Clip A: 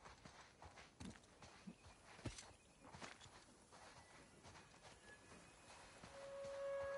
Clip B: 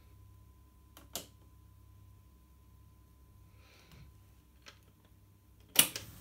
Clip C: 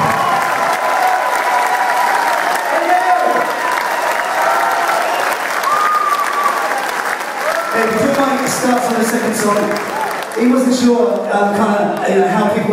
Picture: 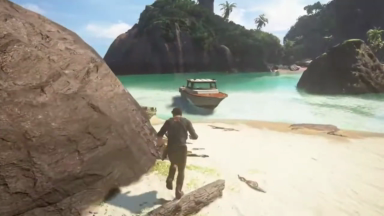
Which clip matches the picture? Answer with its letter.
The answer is A